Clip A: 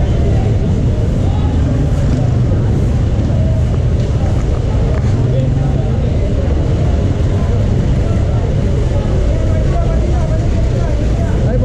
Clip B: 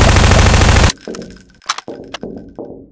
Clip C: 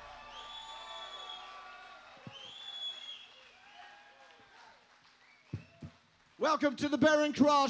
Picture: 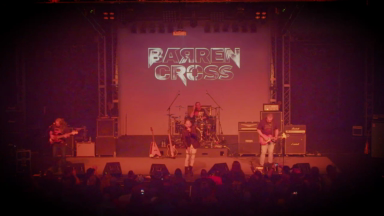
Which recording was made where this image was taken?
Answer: C